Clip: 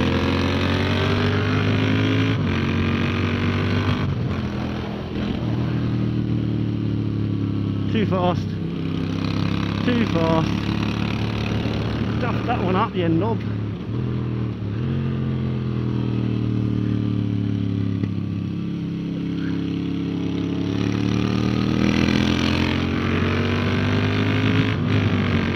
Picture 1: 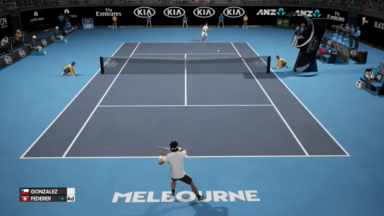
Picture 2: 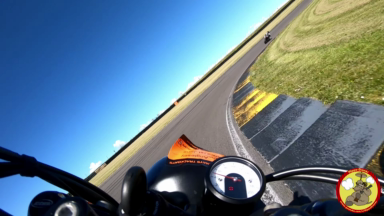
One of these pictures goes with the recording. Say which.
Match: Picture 2